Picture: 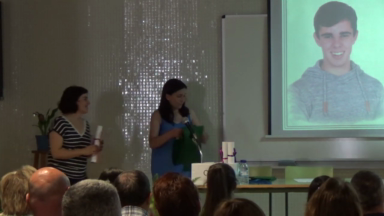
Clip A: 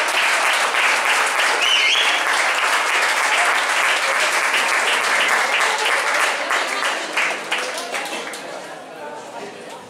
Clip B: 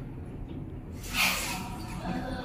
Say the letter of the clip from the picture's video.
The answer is A